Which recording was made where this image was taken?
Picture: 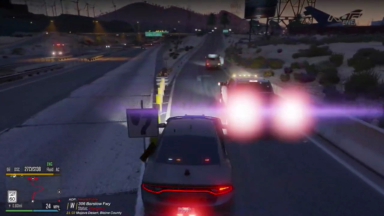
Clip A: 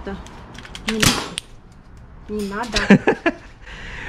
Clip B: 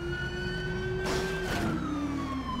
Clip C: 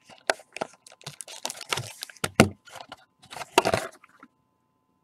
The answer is B